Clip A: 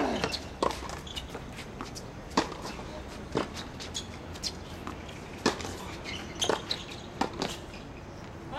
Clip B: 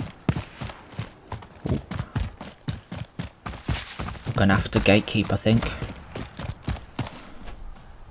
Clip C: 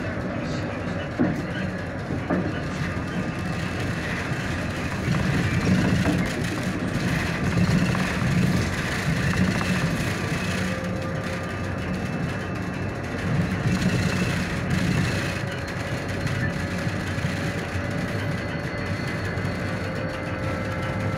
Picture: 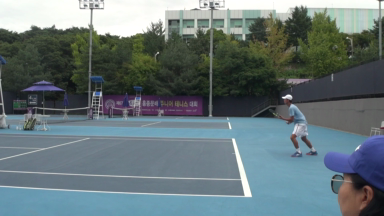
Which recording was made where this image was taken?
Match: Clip A